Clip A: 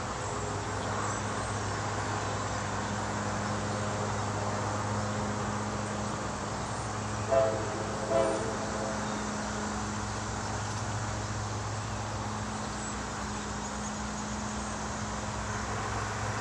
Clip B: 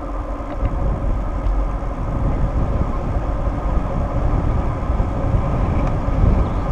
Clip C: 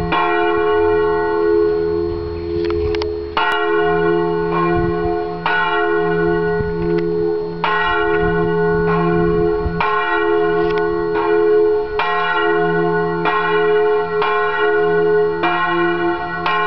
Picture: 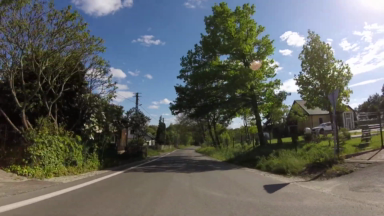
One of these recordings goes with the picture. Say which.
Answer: B